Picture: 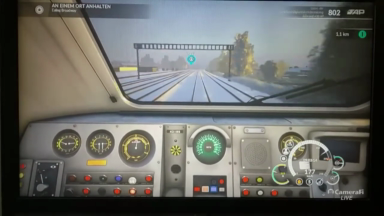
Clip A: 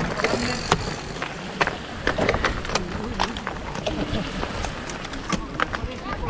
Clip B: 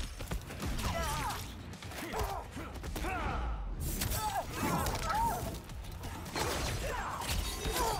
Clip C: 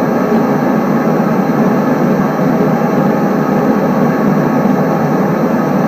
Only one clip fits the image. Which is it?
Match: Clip C